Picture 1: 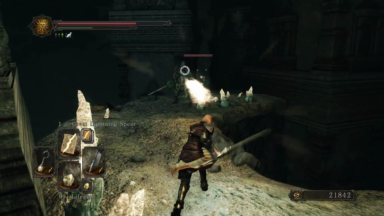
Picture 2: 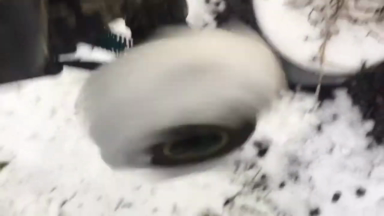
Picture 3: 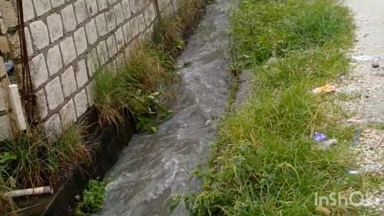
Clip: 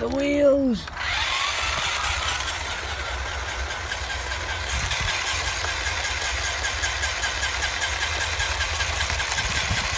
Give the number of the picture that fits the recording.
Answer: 2